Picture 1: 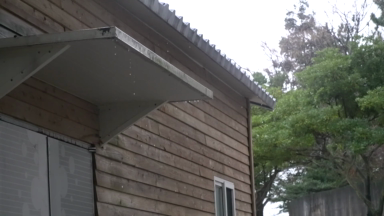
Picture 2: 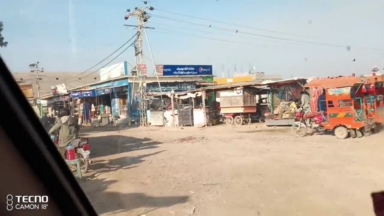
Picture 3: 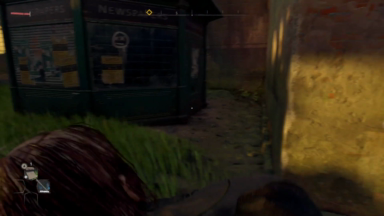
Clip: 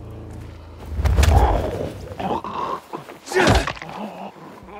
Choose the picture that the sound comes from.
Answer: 3